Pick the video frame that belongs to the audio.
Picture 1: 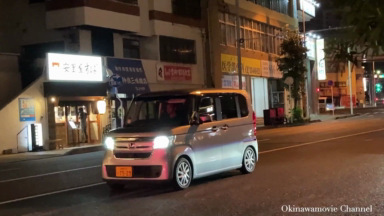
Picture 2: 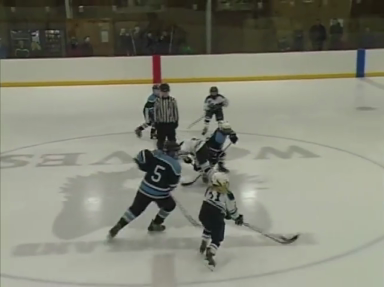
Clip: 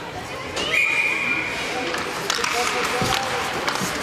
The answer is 2